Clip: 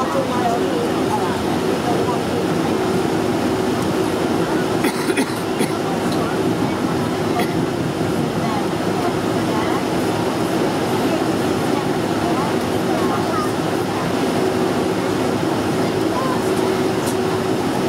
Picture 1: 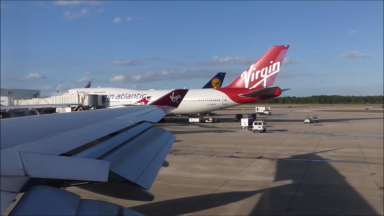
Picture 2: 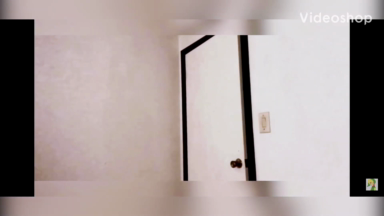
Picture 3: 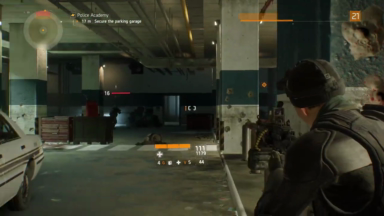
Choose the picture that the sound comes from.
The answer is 1